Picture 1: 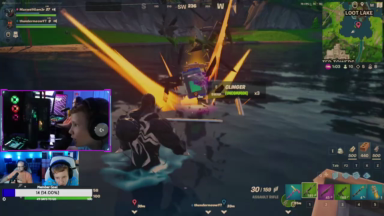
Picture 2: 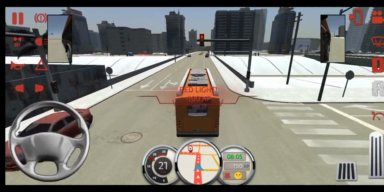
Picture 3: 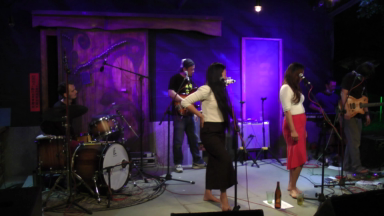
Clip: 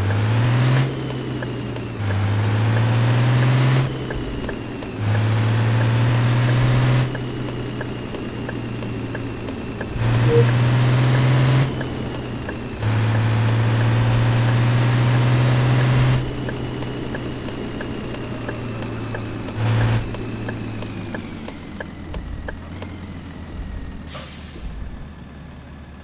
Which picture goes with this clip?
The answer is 2